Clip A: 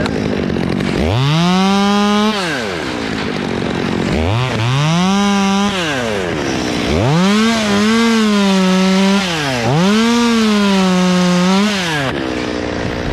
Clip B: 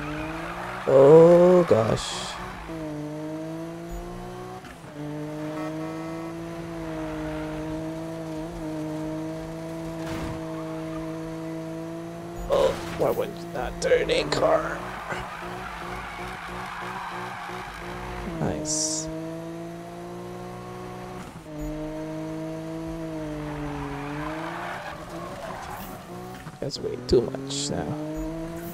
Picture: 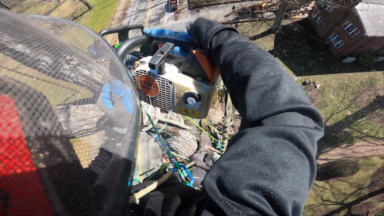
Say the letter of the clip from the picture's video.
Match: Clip A